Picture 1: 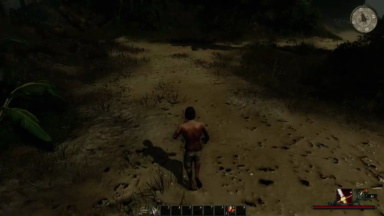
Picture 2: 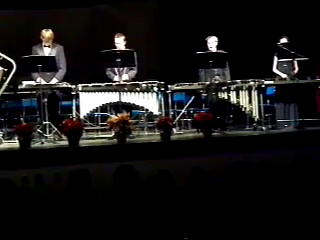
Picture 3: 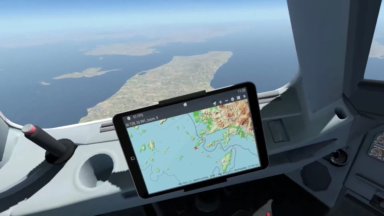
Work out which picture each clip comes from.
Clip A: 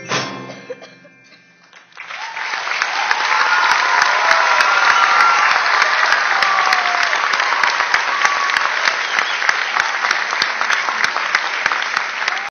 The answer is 2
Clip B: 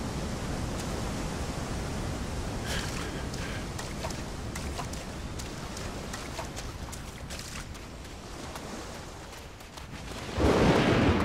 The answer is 1